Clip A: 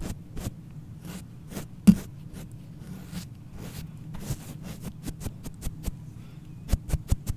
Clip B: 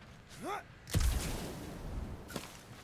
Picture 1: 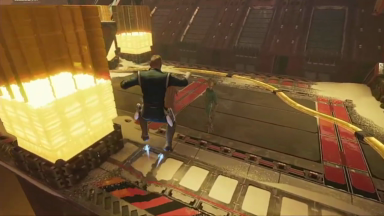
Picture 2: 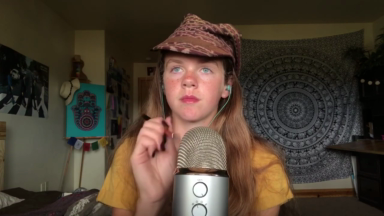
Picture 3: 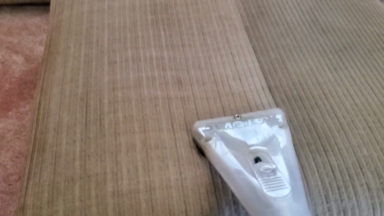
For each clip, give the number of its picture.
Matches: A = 2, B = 1